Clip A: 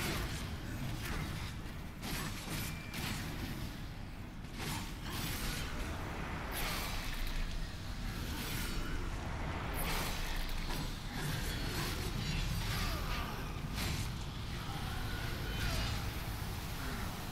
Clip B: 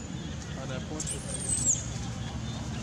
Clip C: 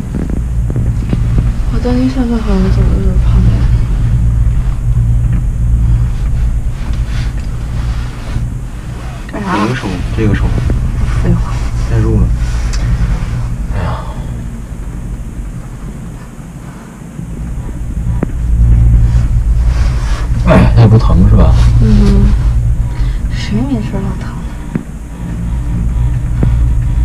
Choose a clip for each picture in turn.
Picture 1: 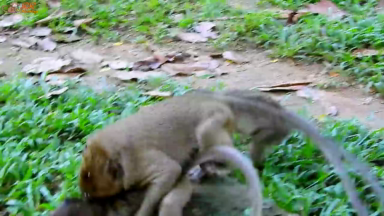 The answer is B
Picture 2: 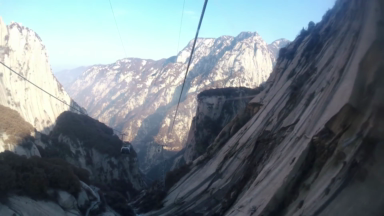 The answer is C